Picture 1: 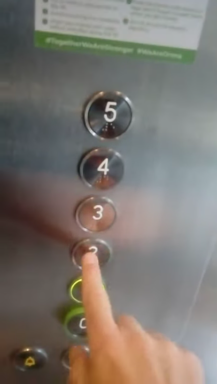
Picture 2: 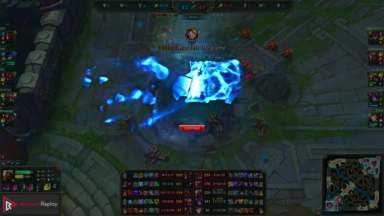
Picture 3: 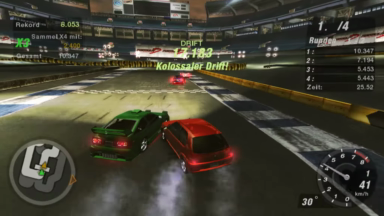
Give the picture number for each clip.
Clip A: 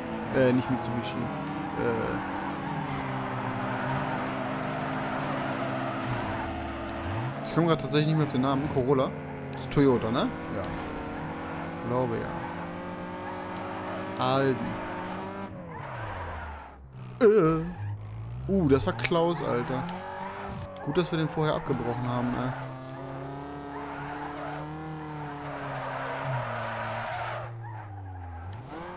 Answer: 3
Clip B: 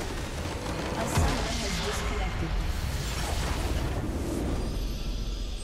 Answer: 2